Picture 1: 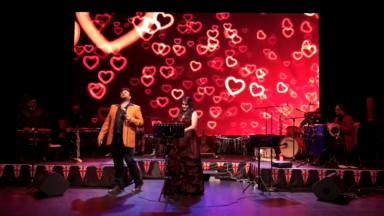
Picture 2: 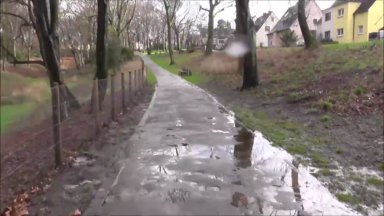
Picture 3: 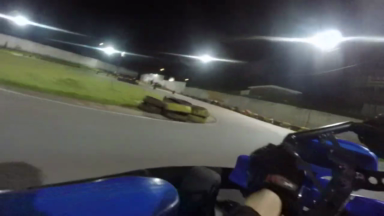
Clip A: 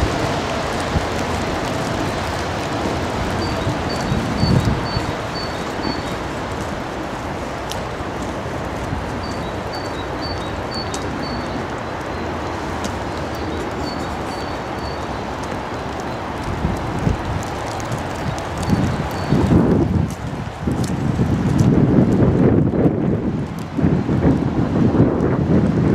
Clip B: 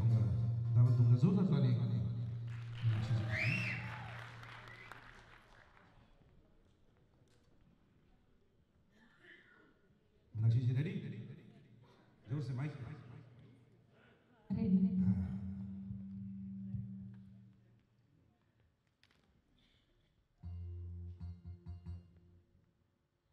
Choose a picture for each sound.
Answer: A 2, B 1